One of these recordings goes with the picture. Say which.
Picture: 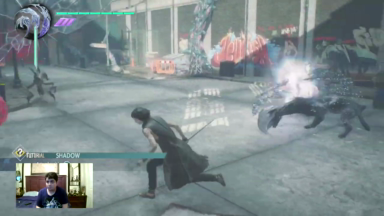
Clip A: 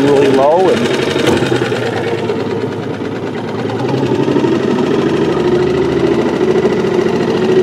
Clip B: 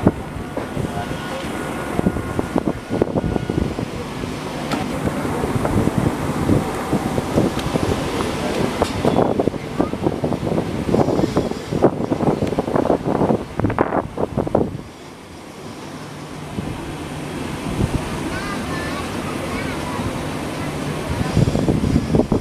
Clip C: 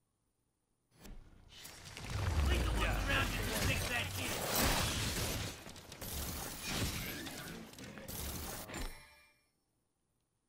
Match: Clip C